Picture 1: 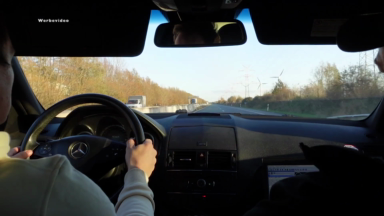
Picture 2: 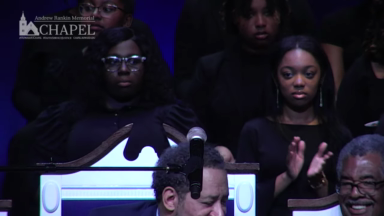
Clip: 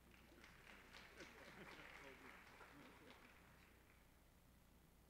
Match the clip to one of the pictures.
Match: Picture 2